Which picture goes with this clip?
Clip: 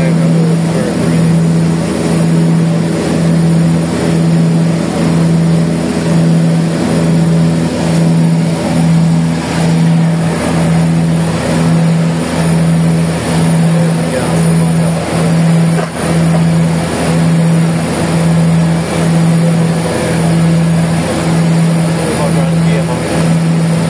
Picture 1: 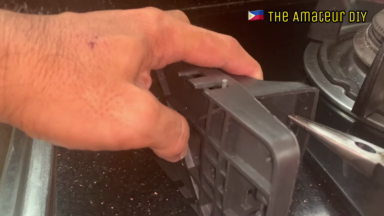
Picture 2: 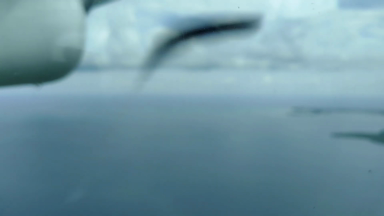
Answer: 2